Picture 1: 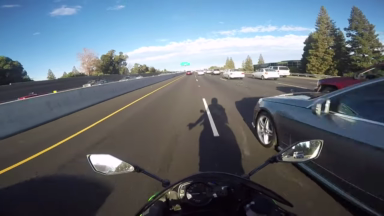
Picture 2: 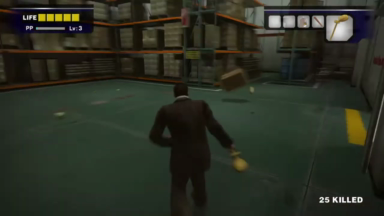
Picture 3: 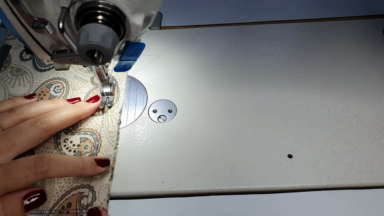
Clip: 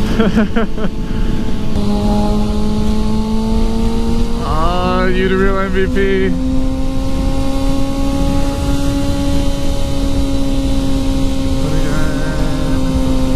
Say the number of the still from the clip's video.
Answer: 1